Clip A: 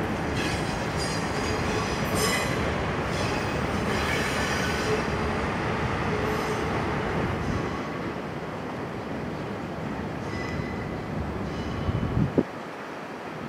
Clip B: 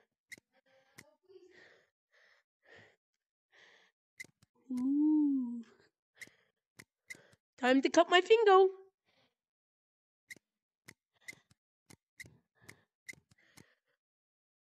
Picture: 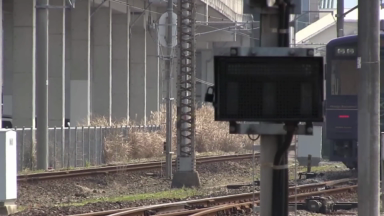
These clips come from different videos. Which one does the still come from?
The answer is A